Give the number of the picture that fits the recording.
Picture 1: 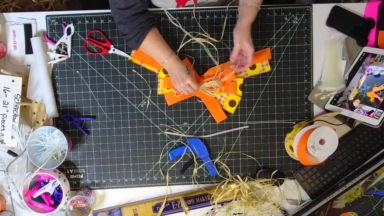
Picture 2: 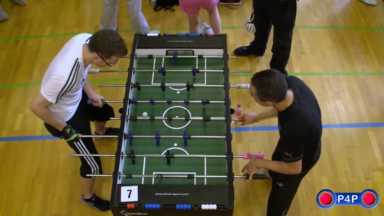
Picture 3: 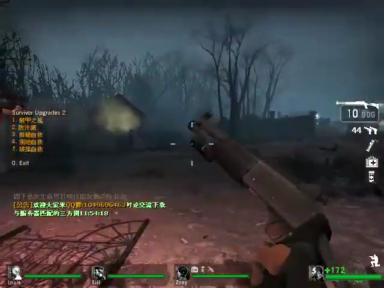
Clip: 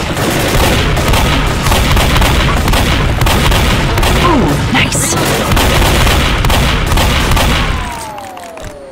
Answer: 3